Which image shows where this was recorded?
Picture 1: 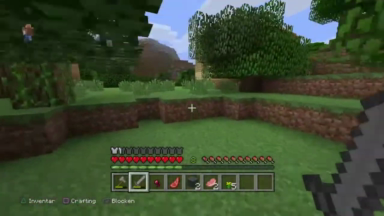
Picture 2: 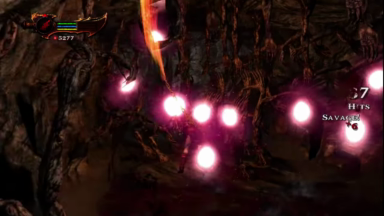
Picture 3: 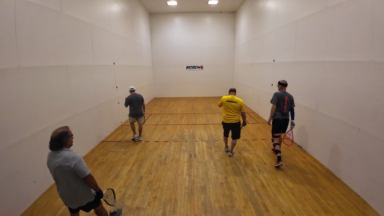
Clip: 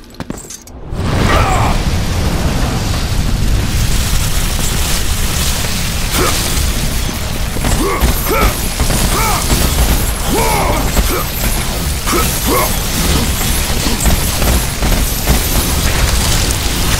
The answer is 2